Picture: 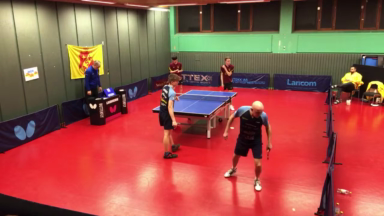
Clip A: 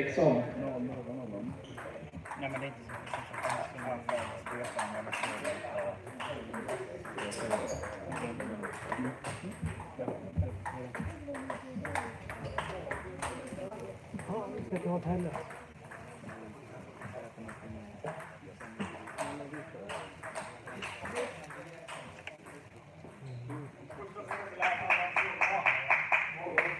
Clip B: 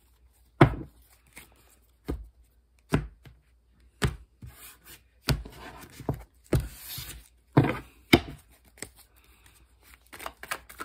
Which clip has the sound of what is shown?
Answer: A